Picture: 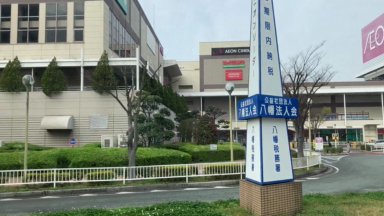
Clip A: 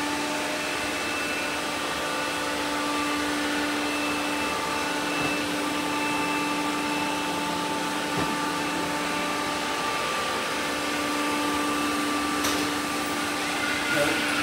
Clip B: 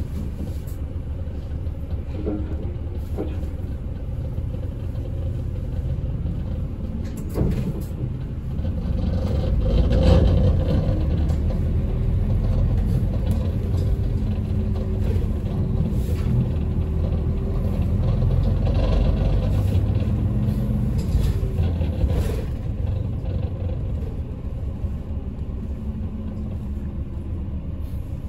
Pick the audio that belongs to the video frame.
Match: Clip B